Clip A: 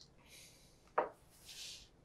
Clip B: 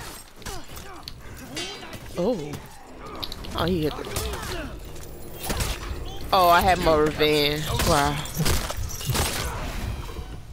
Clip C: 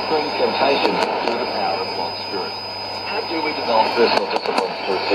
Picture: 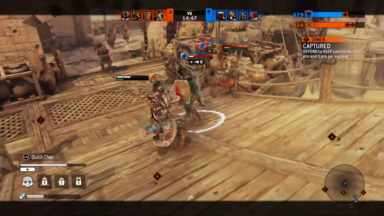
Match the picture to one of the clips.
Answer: B